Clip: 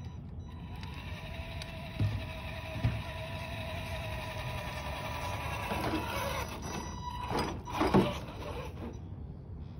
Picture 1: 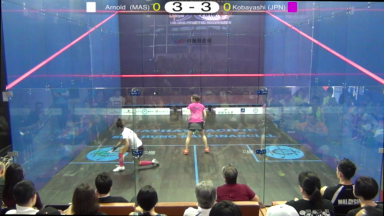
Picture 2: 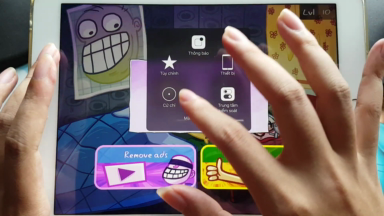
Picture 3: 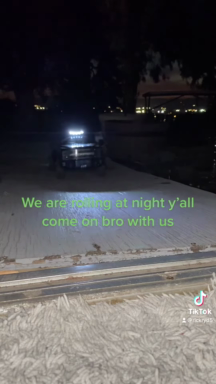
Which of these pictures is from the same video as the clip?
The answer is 3